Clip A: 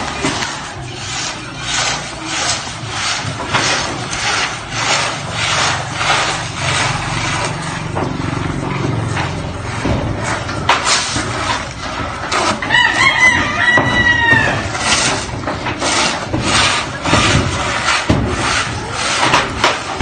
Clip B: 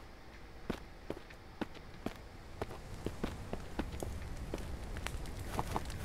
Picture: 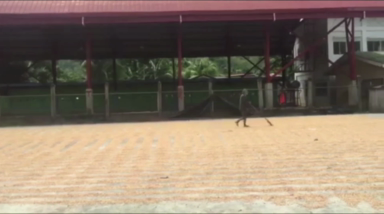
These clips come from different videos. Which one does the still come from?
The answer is A